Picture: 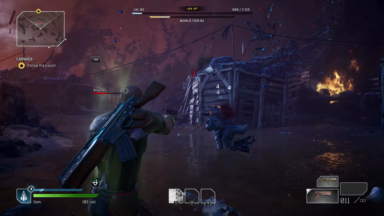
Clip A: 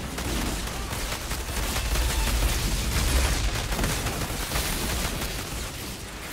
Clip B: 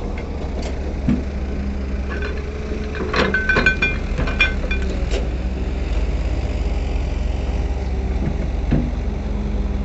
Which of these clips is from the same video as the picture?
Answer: A